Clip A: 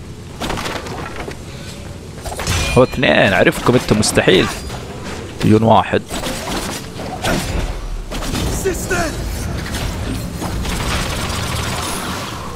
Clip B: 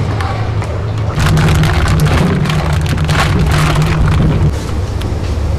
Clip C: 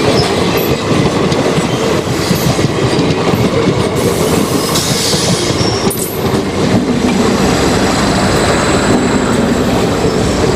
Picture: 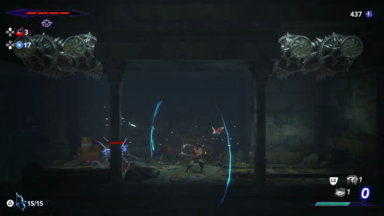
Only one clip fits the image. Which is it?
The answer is A